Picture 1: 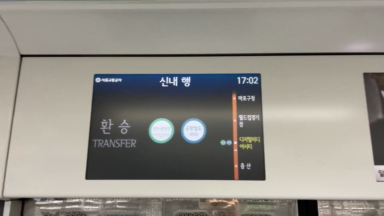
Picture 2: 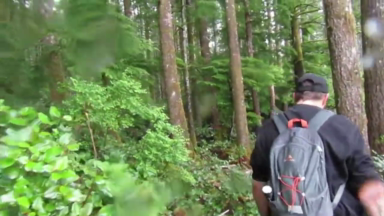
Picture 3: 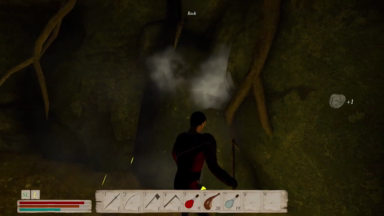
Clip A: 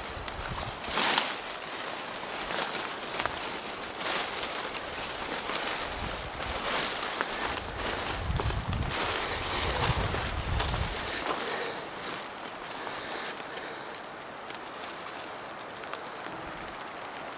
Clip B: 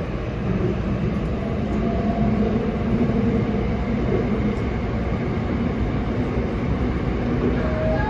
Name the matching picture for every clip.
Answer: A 2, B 1